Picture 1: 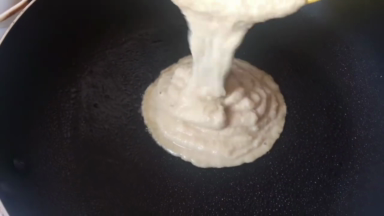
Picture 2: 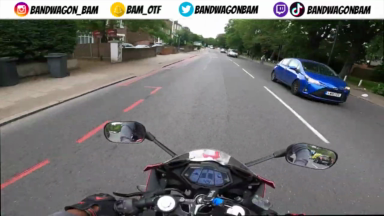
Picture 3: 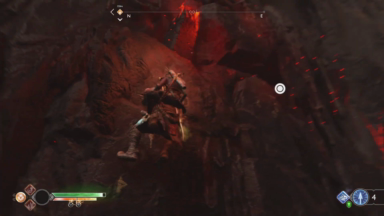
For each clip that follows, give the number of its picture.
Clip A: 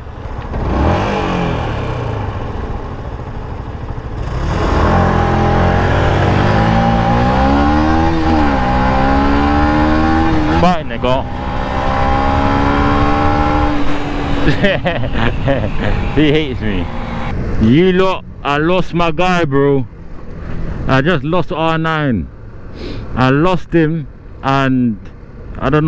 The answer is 2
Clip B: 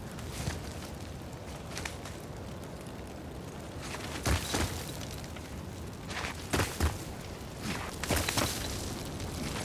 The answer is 3